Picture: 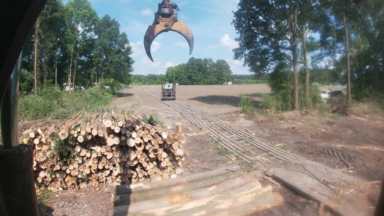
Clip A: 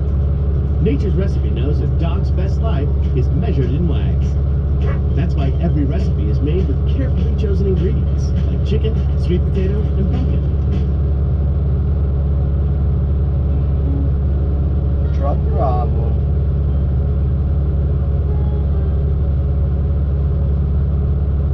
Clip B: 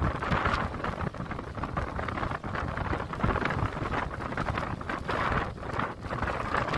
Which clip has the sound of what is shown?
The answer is A